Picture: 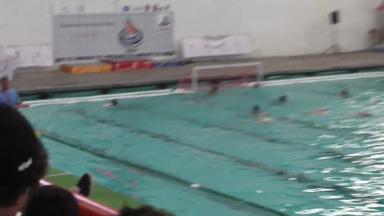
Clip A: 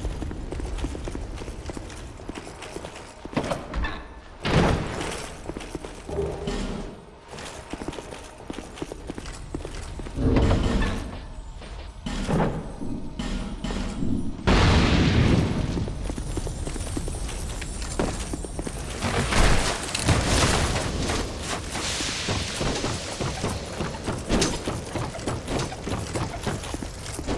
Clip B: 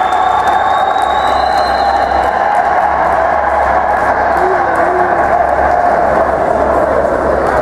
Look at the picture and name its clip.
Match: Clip B